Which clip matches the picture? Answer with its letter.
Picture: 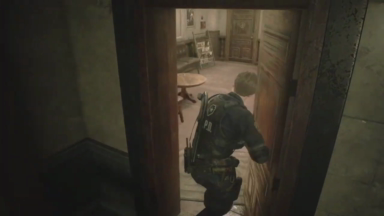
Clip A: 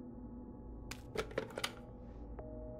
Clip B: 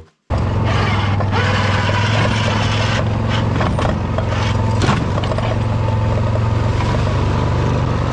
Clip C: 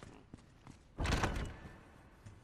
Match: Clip C